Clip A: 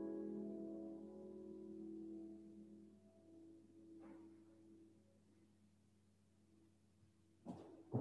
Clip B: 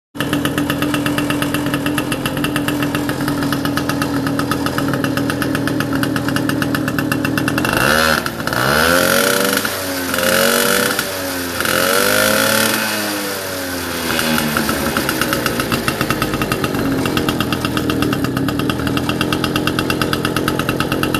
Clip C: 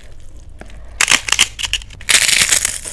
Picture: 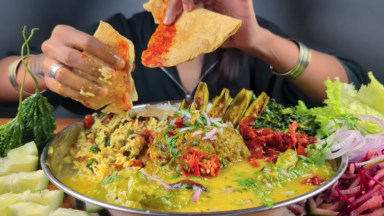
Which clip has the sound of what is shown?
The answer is C